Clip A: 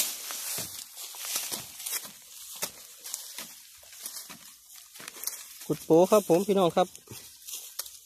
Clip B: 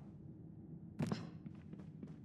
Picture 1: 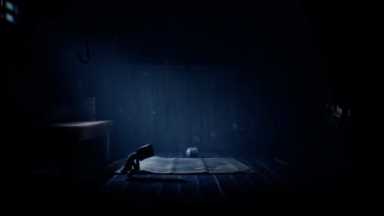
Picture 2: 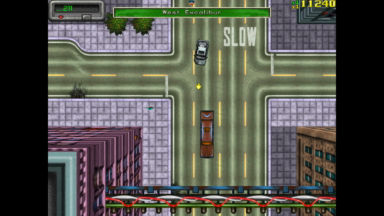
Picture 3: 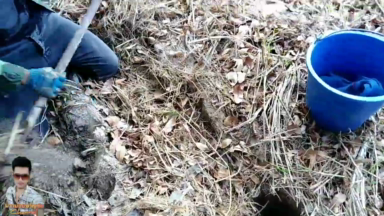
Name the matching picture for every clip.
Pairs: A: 3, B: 1